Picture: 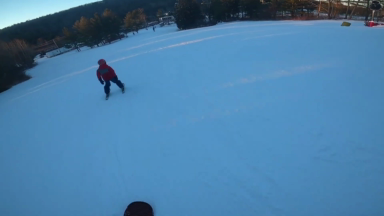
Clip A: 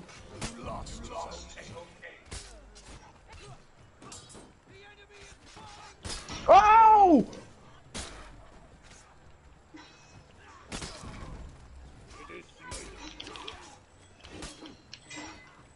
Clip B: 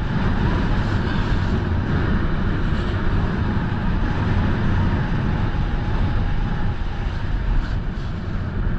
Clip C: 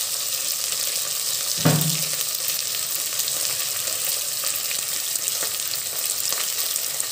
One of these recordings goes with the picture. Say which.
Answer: B